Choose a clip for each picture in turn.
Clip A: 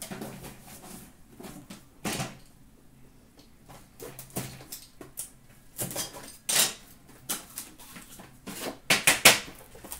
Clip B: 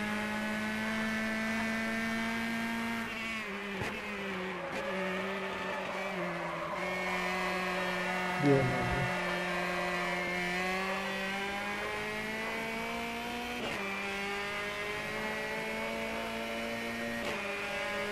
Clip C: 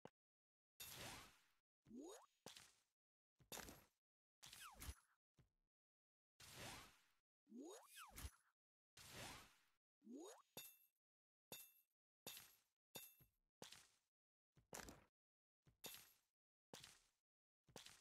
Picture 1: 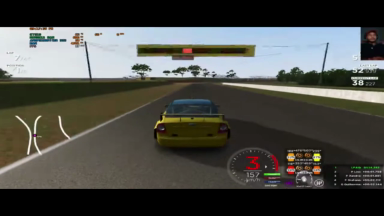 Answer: B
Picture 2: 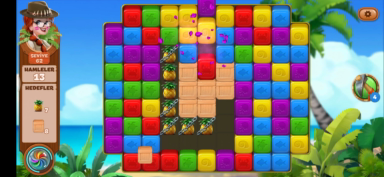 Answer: C